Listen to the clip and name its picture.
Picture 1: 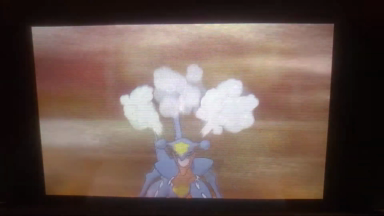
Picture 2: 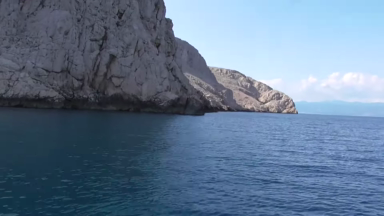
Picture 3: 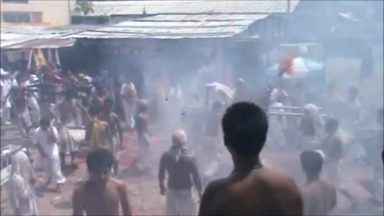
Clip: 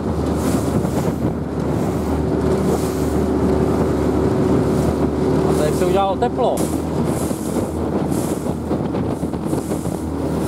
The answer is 2